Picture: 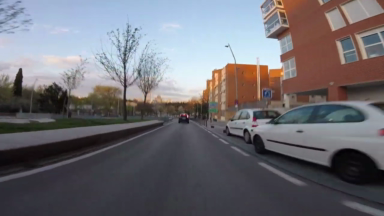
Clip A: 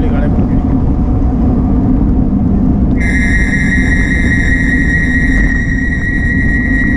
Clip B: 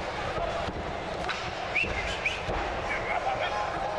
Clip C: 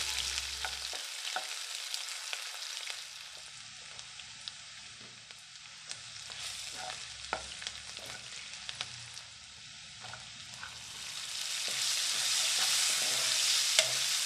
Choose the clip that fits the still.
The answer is A